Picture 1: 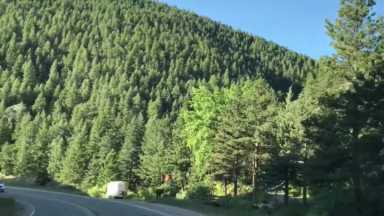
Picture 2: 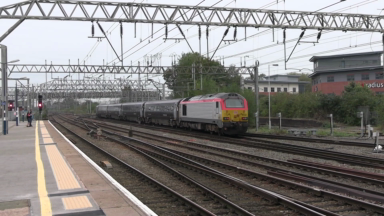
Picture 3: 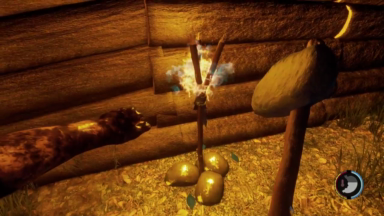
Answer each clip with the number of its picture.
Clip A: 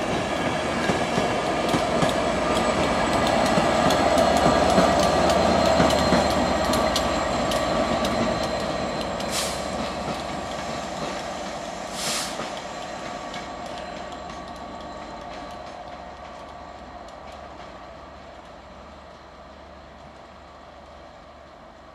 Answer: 2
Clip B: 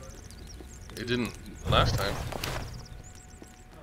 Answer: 3